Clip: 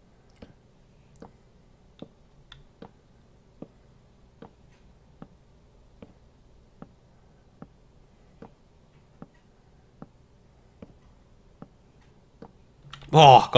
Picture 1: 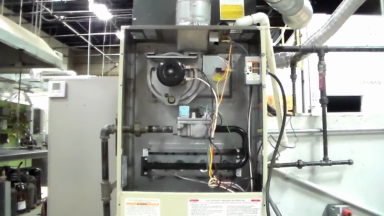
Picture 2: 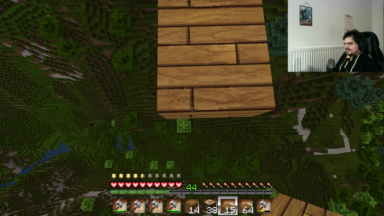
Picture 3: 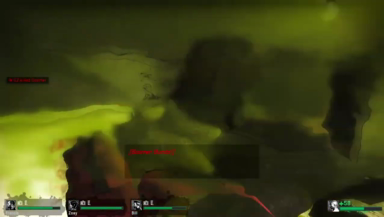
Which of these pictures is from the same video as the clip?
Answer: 2